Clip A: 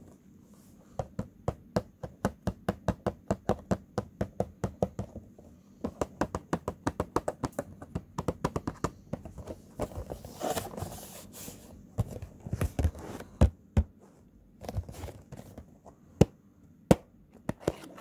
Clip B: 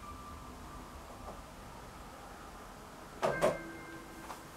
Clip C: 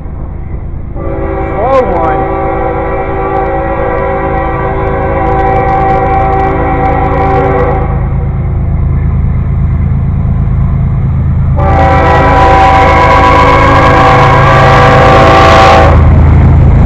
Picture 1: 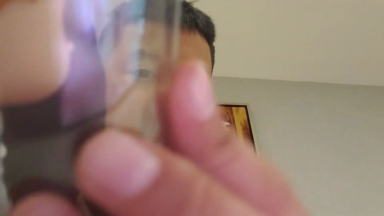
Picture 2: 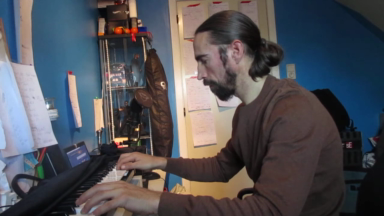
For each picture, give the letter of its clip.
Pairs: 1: A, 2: B